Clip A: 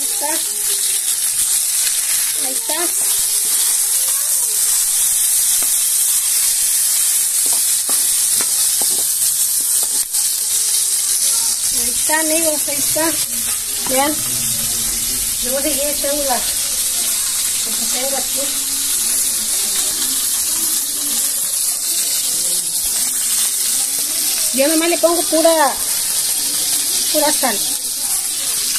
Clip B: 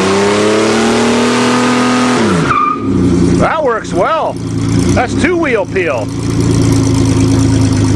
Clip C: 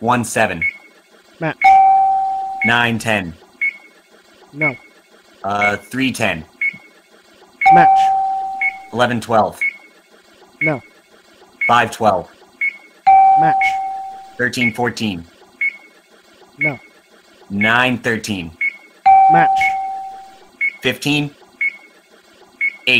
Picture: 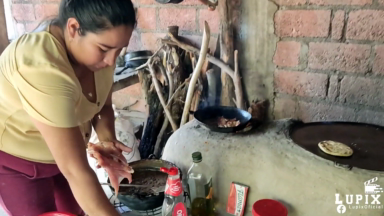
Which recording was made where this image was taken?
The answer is A